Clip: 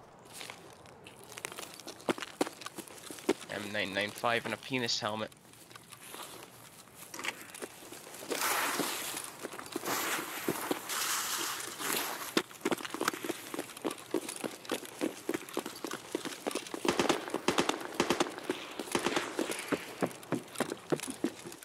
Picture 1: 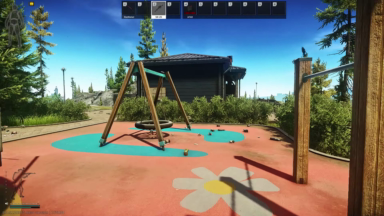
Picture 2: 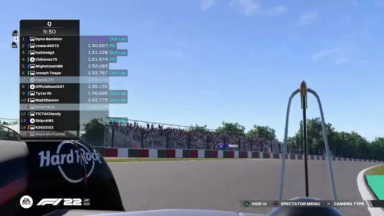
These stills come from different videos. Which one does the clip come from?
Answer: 1